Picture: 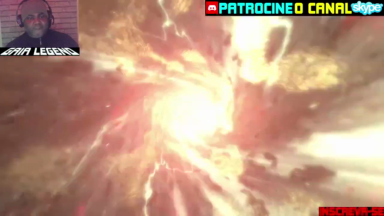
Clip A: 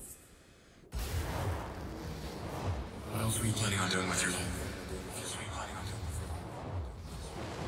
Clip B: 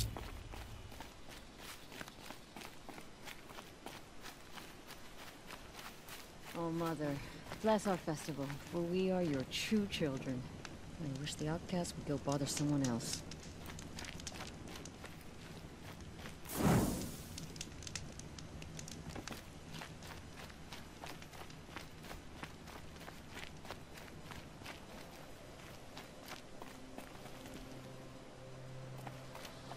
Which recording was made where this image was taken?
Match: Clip A